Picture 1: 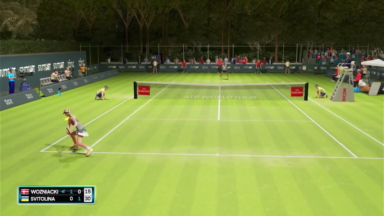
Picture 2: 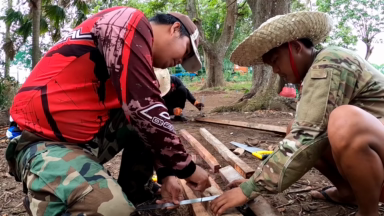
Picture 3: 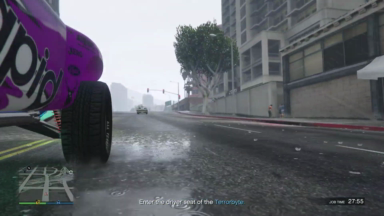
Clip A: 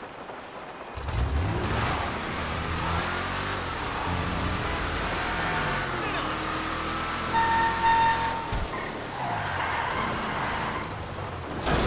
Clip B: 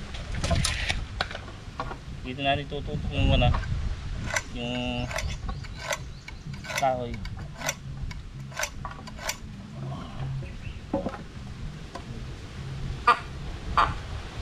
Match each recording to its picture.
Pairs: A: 3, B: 2